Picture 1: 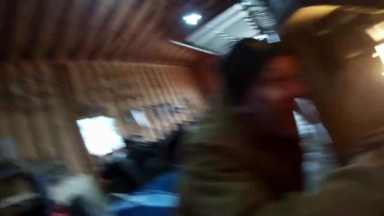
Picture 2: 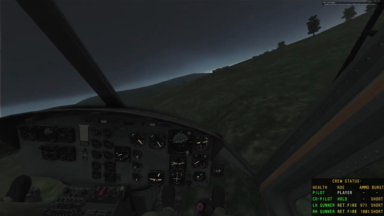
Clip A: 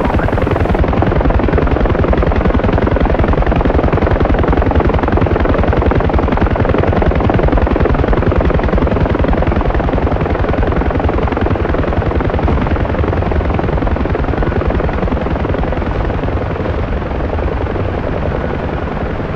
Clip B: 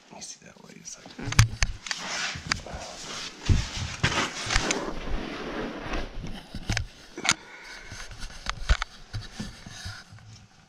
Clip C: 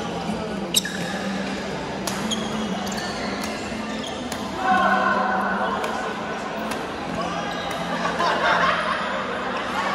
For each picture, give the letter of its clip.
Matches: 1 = B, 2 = A